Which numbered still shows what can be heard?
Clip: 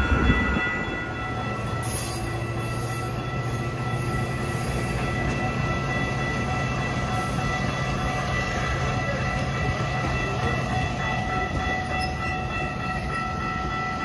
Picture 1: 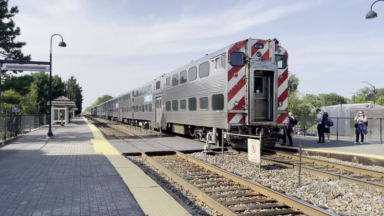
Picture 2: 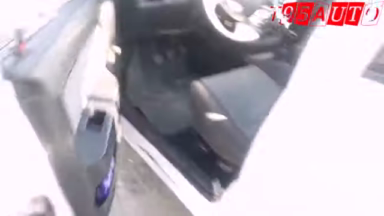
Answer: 1